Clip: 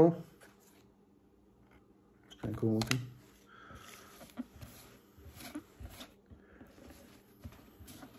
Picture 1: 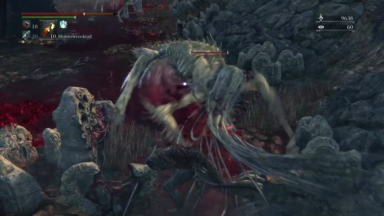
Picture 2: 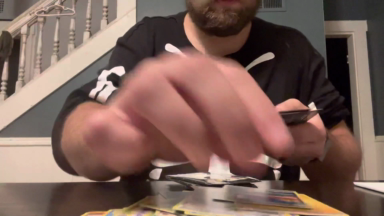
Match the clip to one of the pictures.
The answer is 2